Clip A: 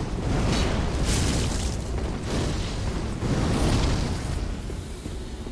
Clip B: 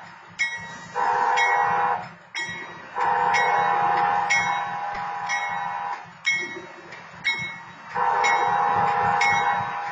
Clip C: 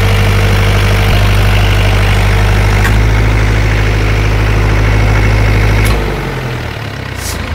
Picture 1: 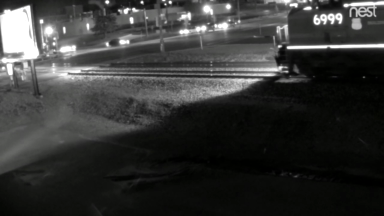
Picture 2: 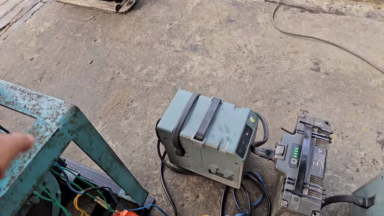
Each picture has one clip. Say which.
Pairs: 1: B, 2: C